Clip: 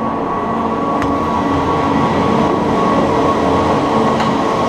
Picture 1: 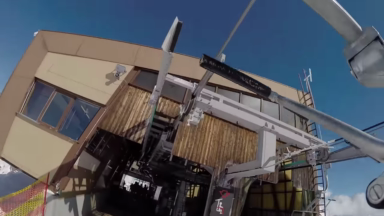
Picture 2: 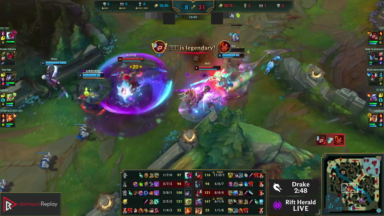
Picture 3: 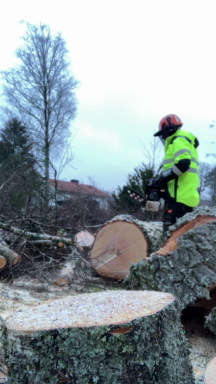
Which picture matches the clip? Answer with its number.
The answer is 1